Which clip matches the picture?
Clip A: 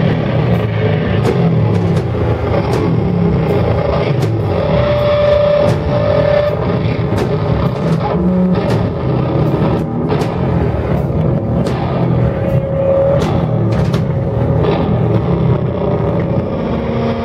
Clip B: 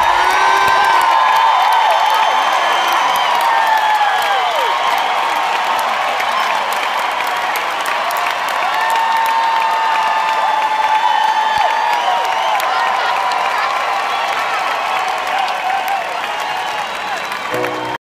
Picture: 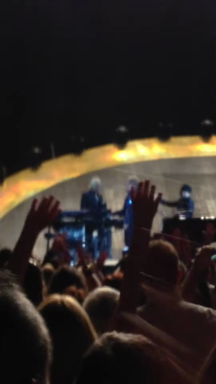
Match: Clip B